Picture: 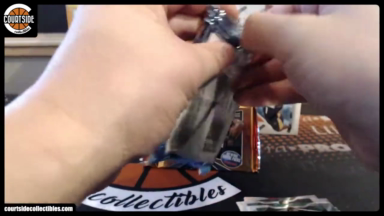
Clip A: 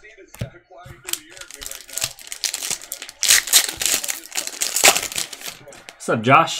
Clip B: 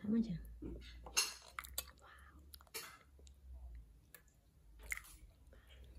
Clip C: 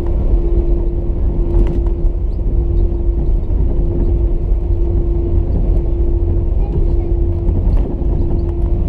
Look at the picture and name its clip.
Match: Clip A